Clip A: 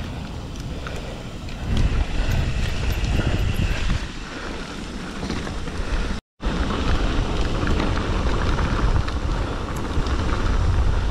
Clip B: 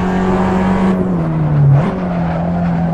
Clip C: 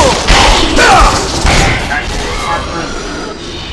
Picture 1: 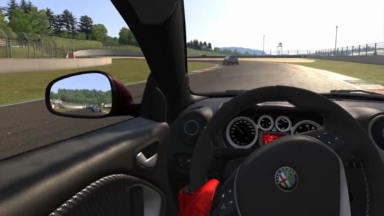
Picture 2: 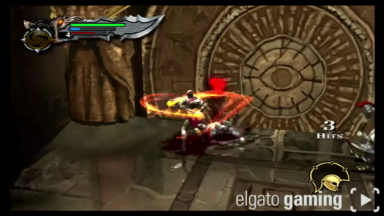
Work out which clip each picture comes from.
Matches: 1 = B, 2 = C